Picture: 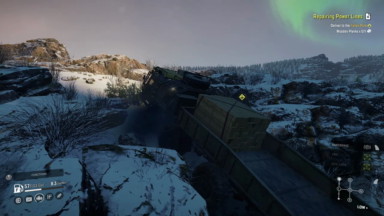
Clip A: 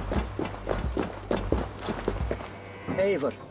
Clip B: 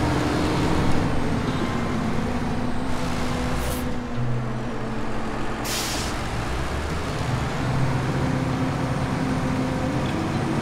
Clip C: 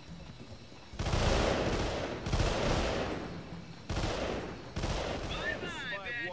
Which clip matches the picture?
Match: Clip B